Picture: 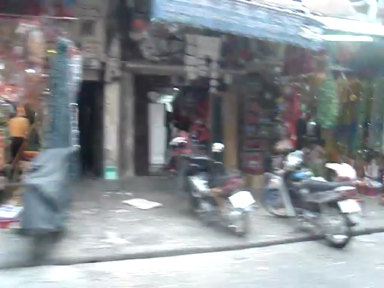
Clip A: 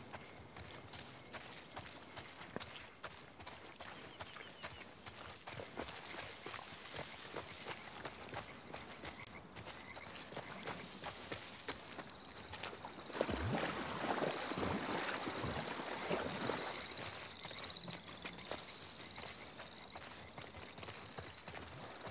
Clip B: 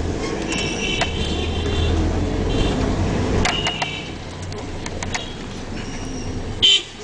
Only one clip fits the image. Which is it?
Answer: B